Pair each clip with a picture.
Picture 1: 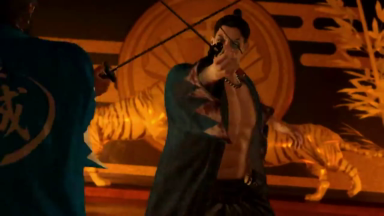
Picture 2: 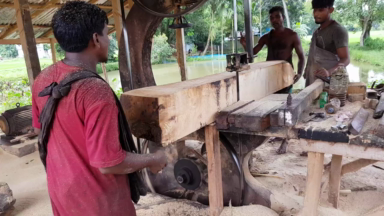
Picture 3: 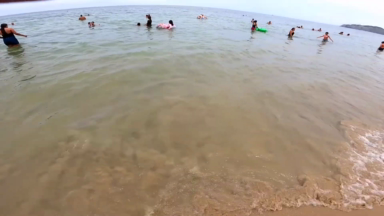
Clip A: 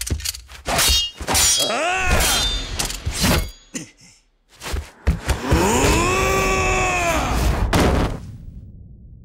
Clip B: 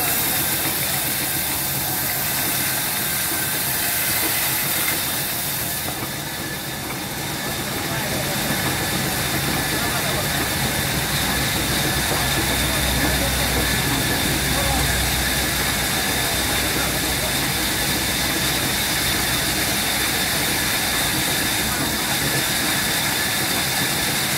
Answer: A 1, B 2